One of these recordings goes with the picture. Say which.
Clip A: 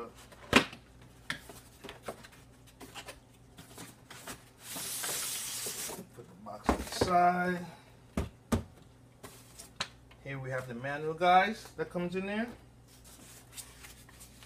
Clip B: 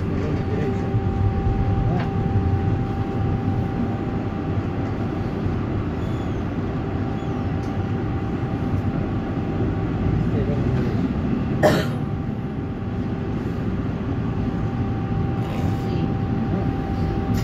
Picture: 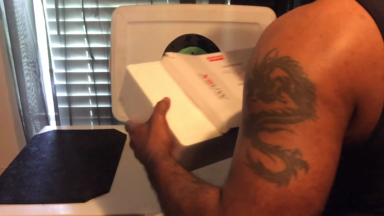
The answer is A